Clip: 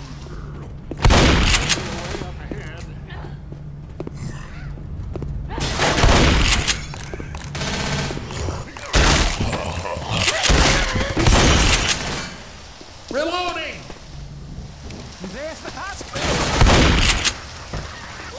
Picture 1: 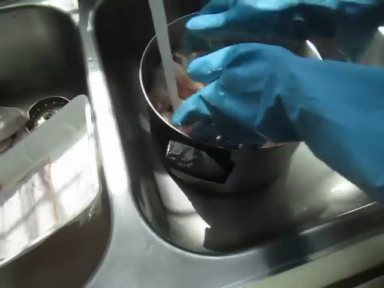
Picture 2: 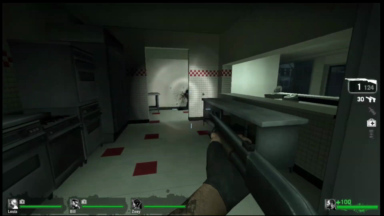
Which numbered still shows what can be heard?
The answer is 2